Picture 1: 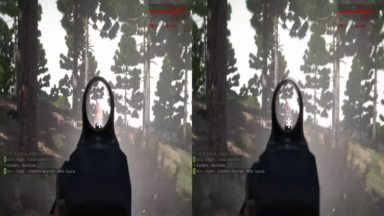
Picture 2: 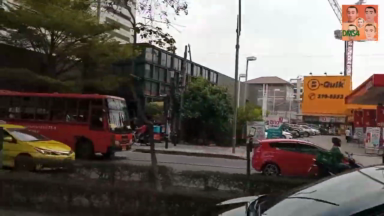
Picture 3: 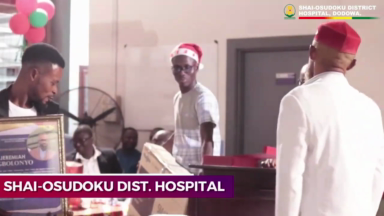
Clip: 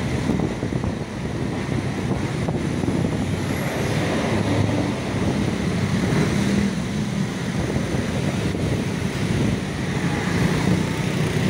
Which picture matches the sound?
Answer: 2